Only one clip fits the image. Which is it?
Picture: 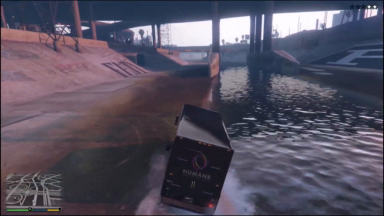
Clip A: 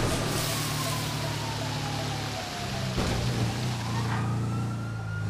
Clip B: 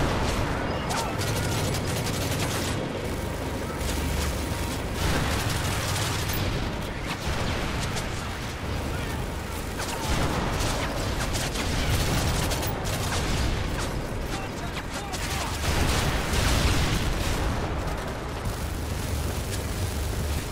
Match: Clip A